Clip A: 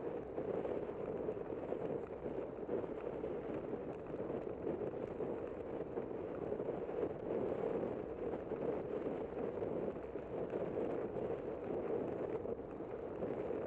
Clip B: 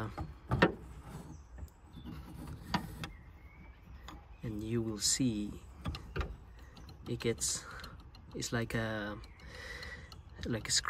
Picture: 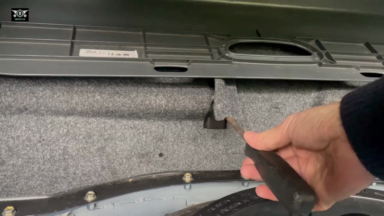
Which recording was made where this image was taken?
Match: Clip B